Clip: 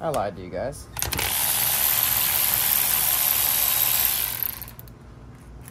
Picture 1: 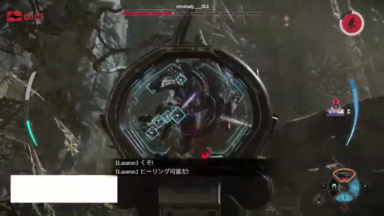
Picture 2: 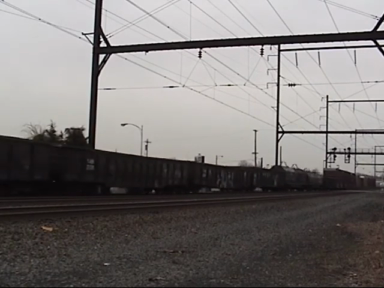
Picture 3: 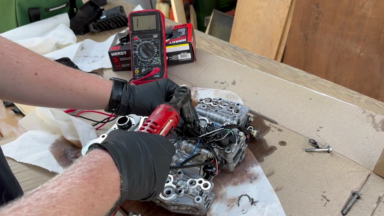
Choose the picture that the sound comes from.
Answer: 3